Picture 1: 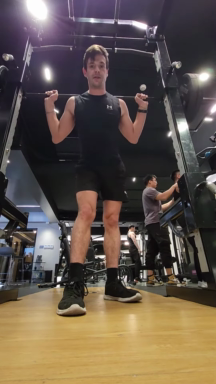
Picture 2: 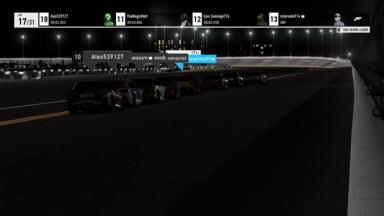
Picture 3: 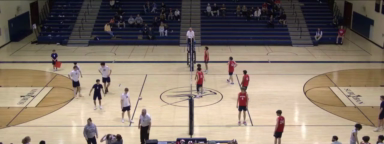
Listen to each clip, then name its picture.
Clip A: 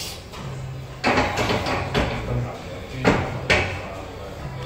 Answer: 1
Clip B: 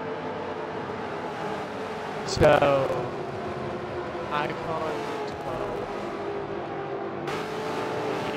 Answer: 2